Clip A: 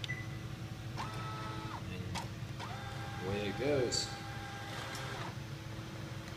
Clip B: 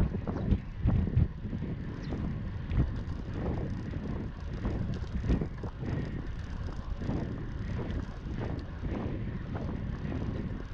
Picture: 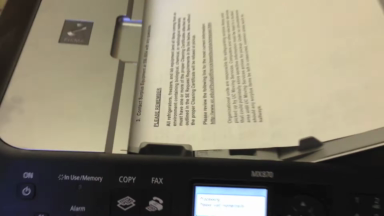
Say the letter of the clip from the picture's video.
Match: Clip A